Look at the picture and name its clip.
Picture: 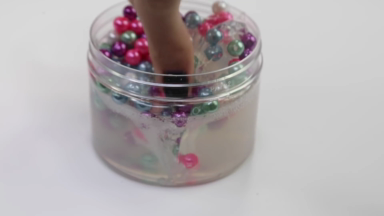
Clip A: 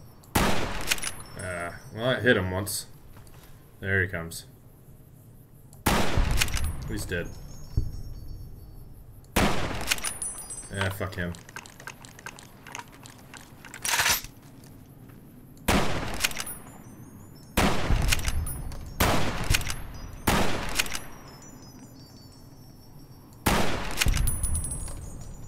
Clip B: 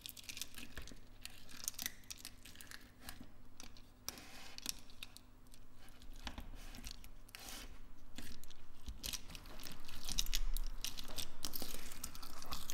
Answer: B